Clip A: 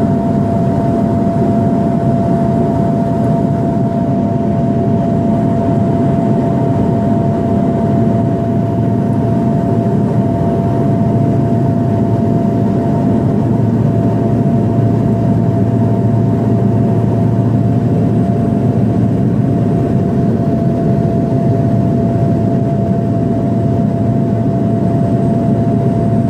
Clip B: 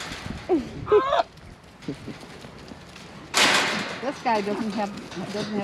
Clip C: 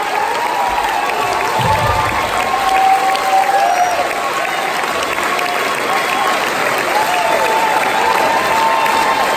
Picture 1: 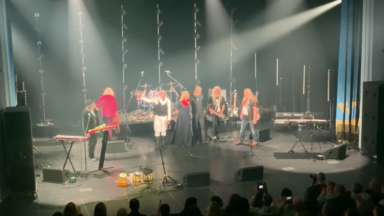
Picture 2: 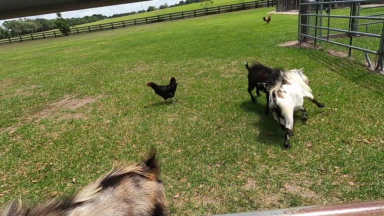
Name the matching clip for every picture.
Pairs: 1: C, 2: B